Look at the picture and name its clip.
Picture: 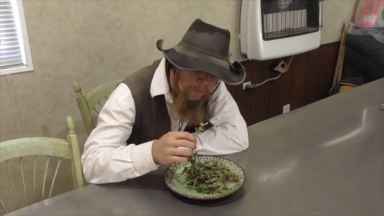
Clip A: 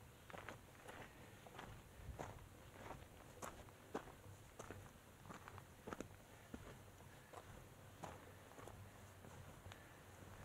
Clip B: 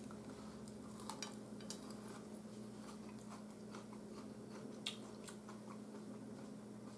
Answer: B